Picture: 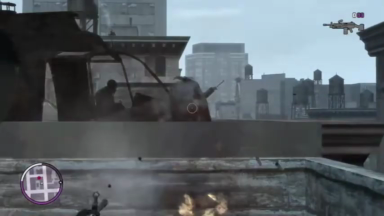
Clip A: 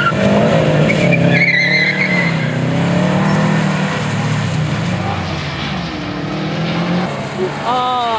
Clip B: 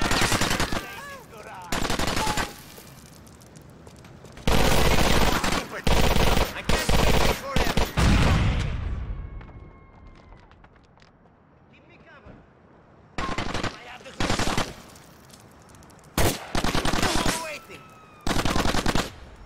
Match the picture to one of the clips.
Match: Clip B